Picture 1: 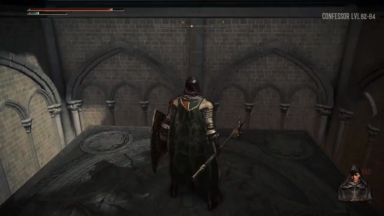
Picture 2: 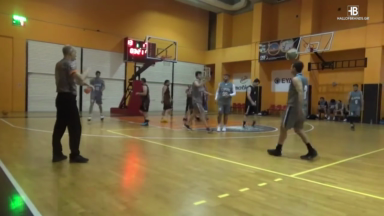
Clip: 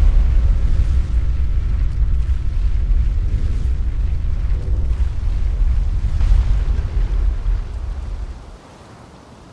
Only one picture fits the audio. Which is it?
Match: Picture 1